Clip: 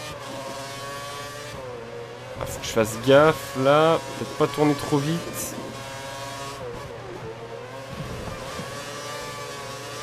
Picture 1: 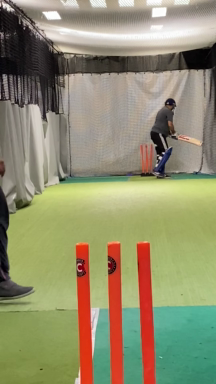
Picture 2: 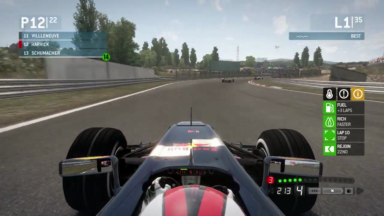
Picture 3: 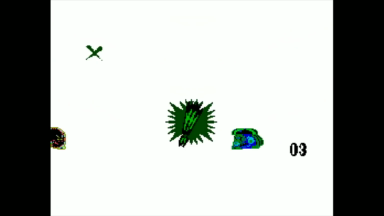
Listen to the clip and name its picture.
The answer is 2